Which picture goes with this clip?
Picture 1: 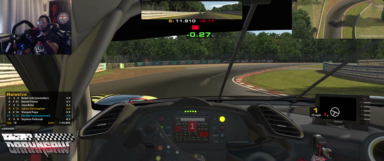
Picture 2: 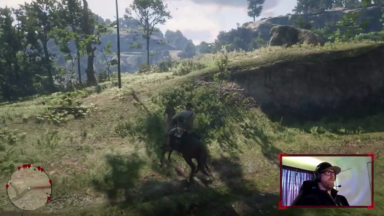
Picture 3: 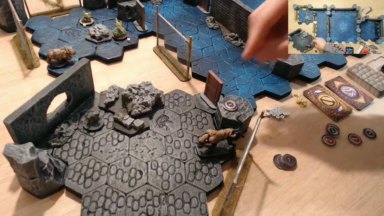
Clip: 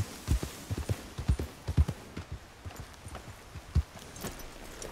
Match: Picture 2